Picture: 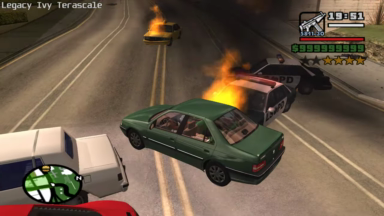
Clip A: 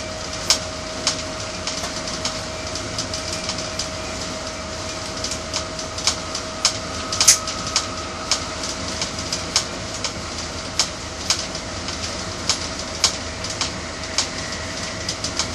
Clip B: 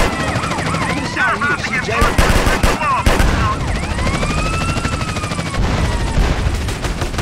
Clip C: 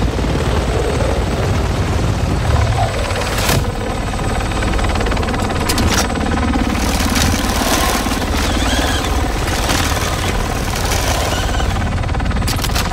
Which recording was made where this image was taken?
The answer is B